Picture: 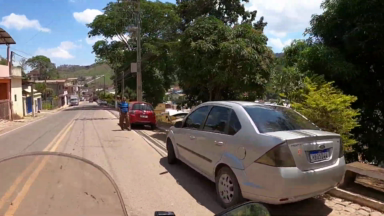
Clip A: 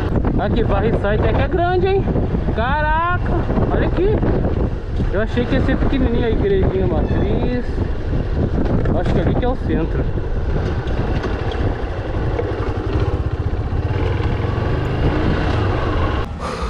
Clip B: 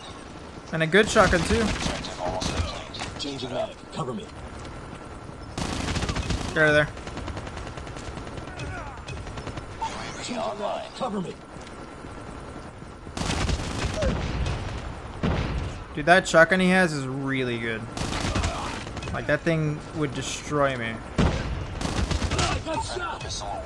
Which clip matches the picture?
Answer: A